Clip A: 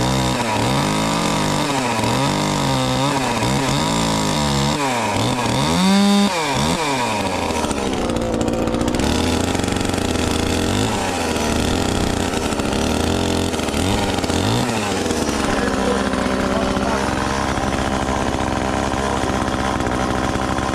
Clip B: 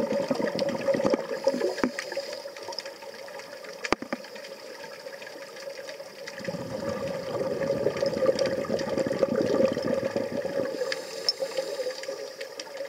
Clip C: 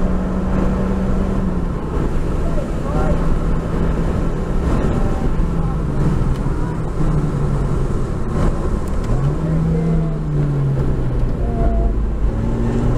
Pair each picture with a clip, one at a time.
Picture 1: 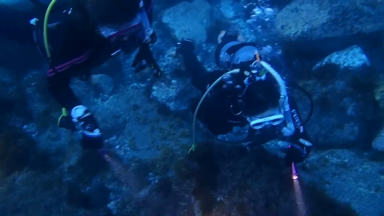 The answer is B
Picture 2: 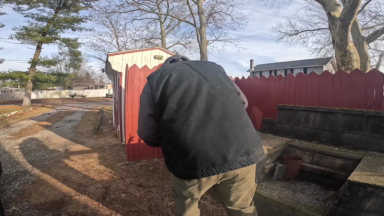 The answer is A